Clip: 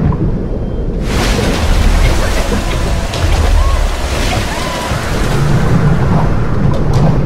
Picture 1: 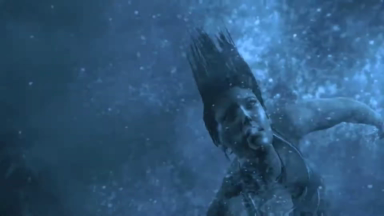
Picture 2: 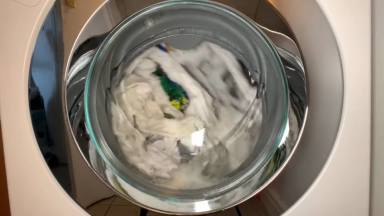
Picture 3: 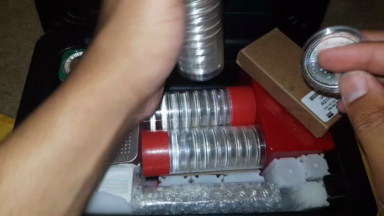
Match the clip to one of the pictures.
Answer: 1